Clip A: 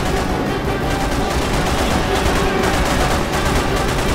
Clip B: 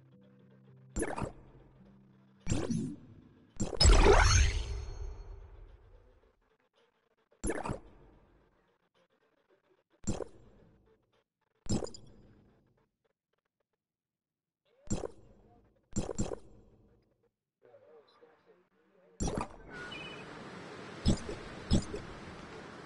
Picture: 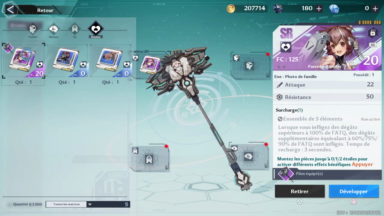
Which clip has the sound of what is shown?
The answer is B